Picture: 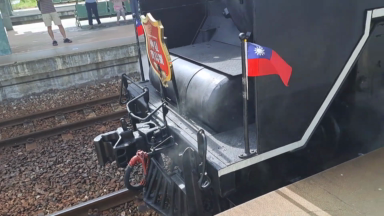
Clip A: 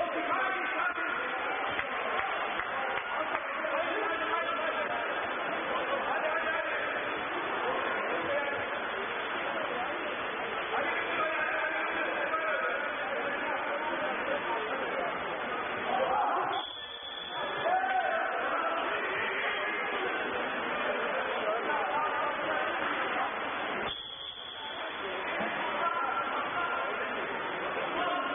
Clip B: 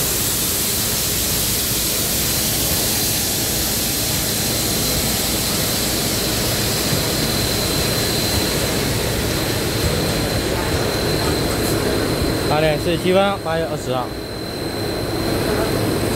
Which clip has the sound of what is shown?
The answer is B